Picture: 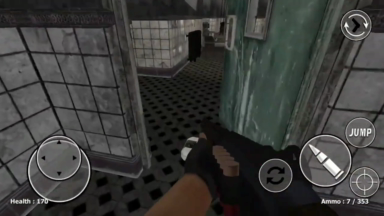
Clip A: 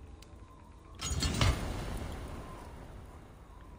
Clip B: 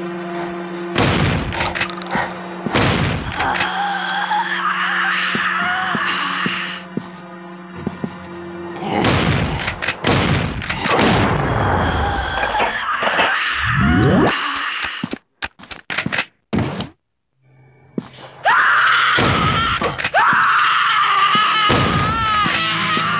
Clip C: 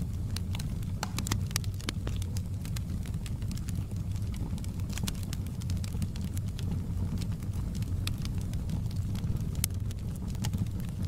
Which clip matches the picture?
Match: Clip B